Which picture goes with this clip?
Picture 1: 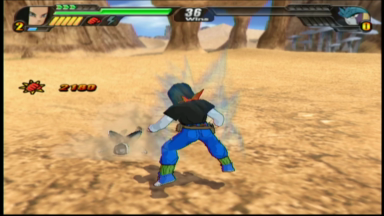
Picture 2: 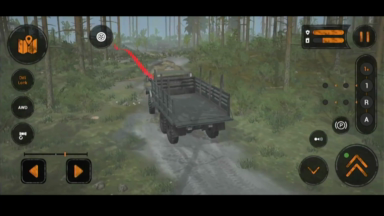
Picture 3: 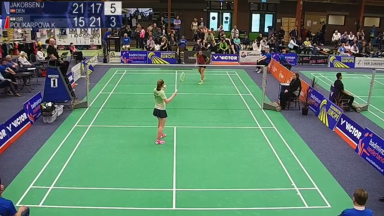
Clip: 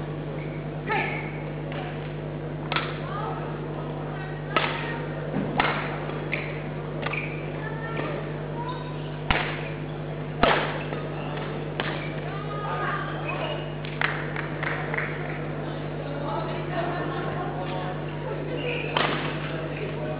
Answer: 3